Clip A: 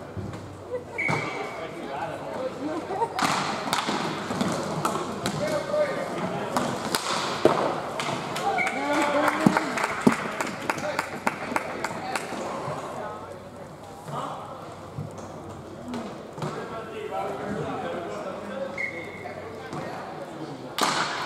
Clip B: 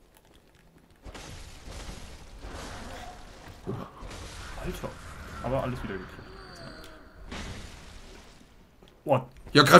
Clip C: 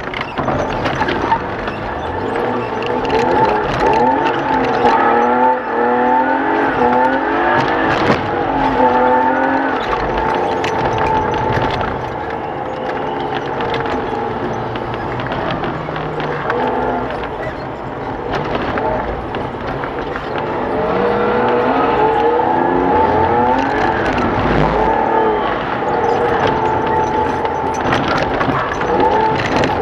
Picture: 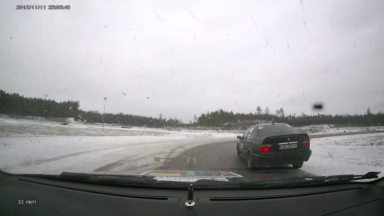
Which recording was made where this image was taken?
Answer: C